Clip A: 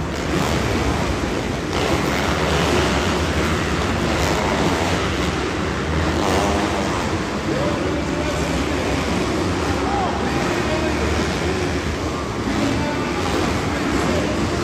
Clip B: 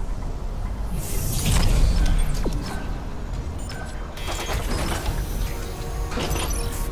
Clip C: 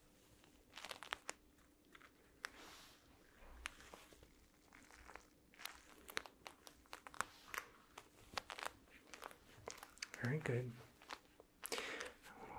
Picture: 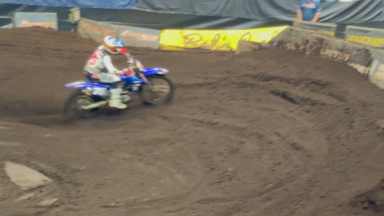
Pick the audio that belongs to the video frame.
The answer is A